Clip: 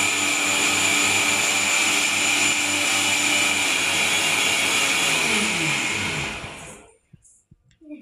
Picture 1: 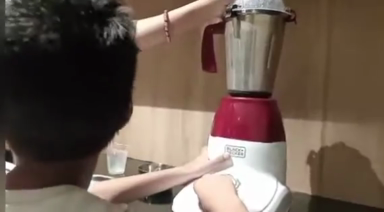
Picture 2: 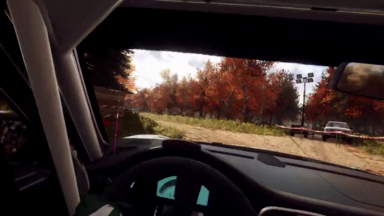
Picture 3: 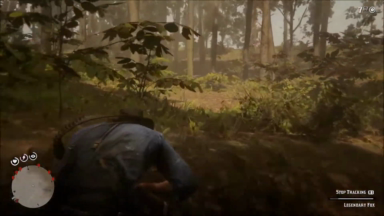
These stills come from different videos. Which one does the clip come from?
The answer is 1